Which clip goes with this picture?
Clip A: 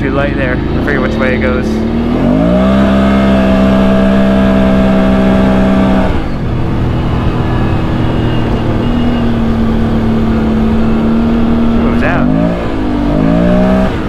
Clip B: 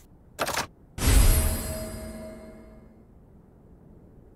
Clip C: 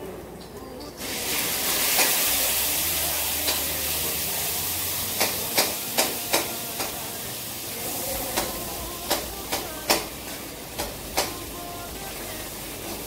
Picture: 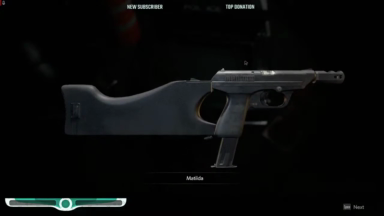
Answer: B